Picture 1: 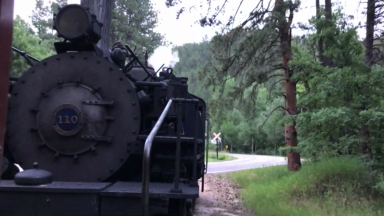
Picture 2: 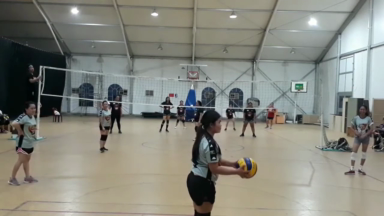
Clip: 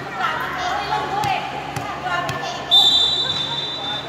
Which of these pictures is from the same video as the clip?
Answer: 2